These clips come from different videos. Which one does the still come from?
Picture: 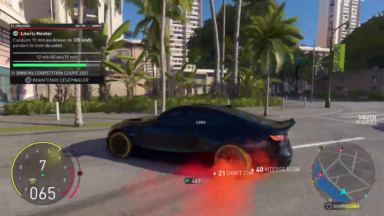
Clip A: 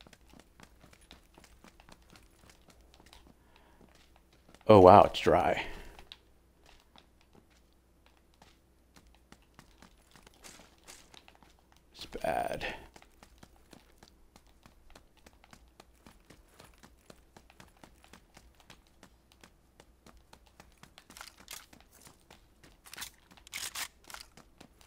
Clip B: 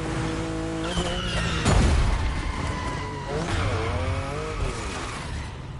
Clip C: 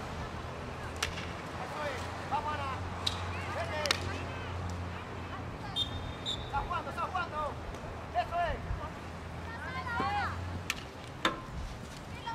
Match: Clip B